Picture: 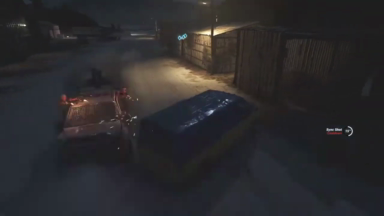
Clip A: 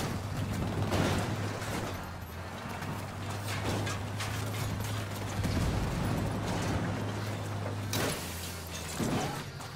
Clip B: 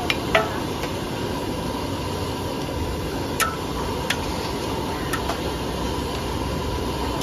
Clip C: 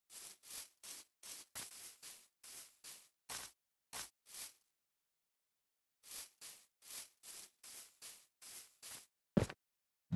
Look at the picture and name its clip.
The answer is A